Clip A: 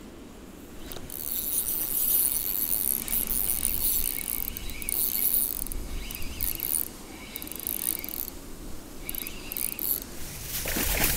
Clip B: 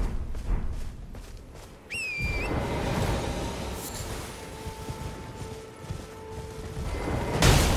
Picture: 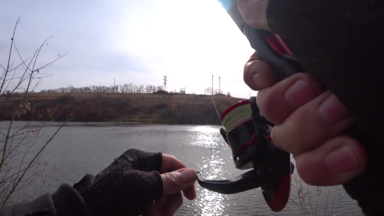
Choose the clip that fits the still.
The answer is A